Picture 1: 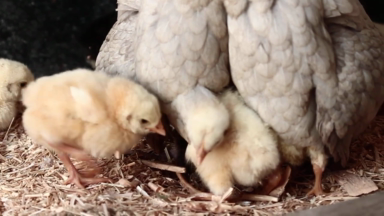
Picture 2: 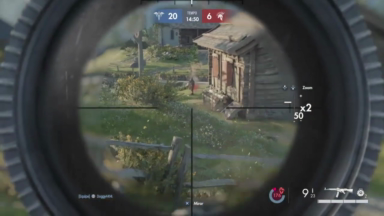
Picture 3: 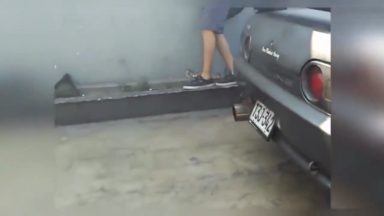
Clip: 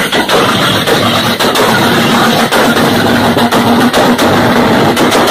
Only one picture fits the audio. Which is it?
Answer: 3